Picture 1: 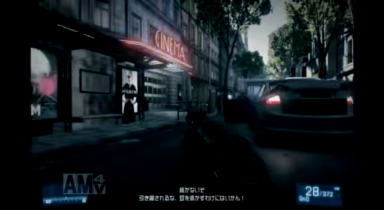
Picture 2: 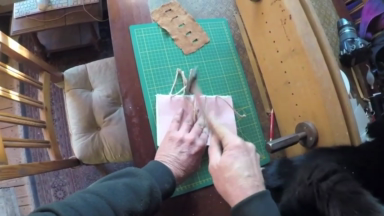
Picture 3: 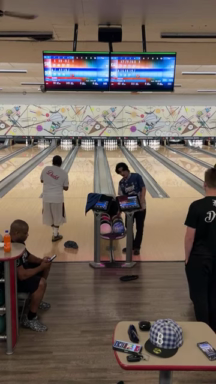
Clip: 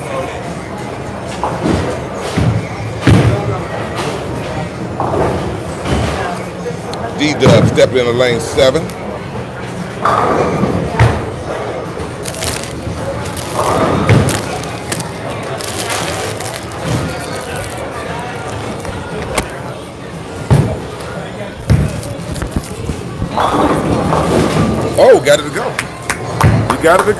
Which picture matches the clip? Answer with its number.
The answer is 3